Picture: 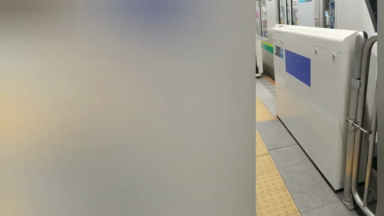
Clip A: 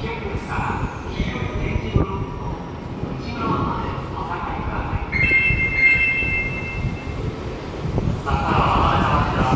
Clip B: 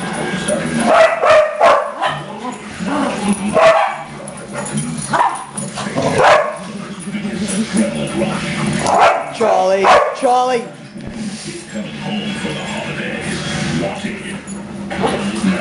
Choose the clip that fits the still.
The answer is A